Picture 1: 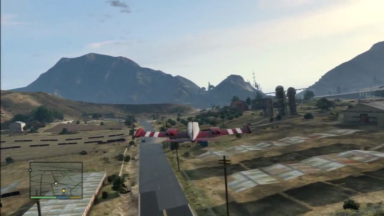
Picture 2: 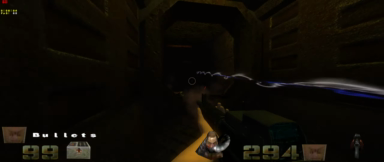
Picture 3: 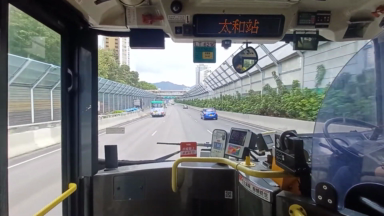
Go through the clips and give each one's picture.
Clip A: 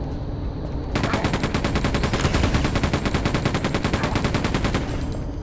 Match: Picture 2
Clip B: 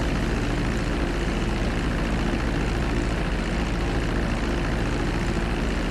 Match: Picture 1